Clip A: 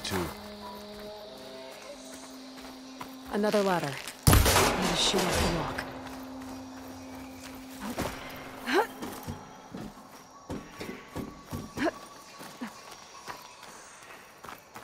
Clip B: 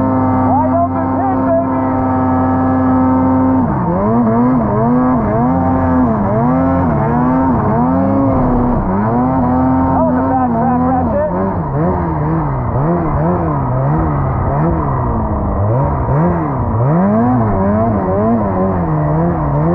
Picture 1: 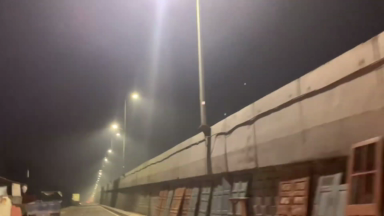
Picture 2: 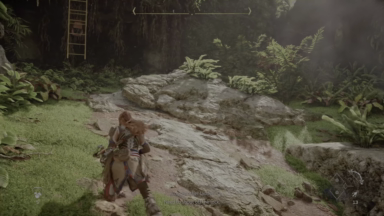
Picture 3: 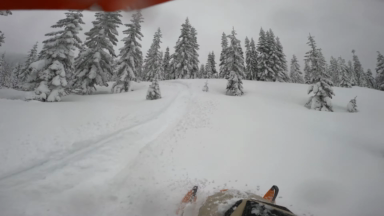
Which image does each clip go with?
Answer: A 2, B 3